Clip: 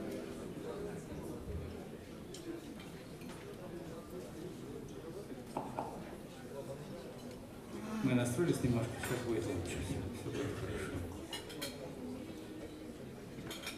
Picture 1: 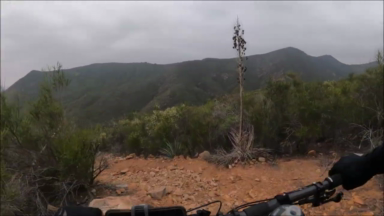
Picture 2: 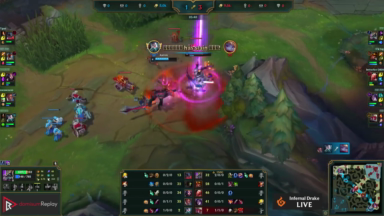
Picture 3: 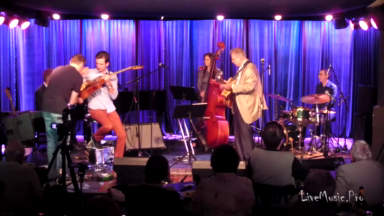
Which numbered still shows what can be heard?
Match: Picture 3